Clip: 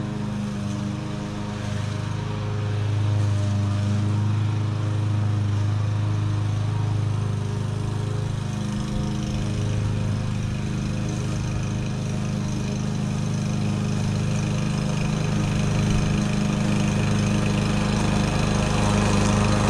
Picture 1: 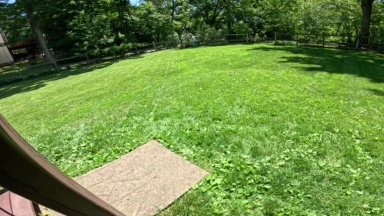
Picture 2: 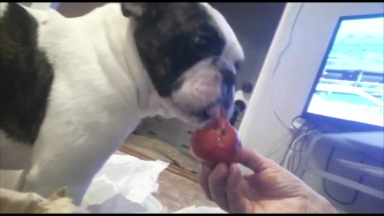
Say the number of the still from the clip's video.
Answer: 1